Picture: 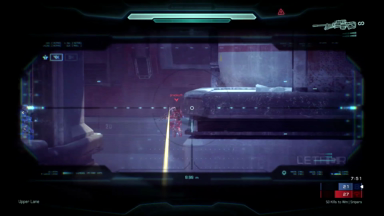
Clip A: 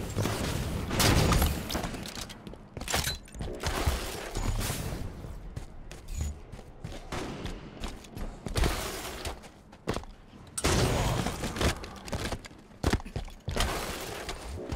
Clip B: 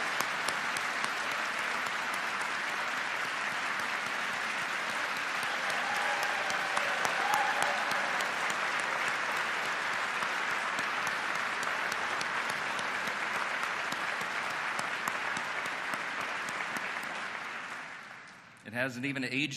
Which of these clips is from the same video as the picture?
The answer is A